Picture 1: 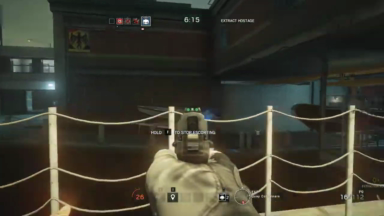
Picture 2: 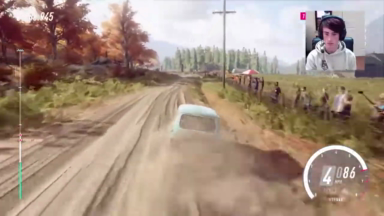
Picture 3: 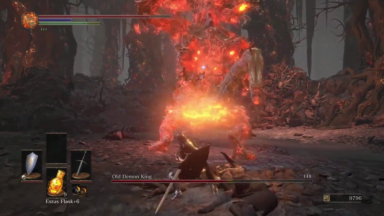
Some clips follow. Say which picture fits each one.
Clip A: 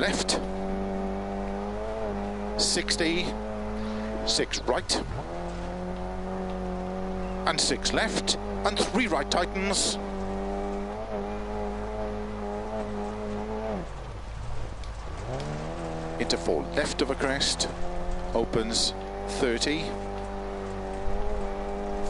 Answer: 2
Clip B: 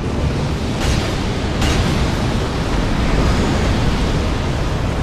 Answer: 3